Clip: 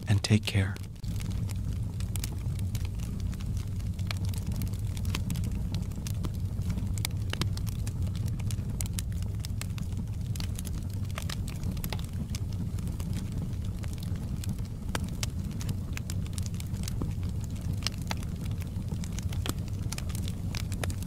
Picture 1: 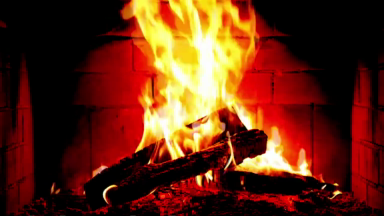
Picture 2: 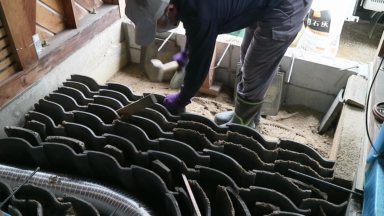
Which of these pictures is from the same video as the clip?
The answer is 1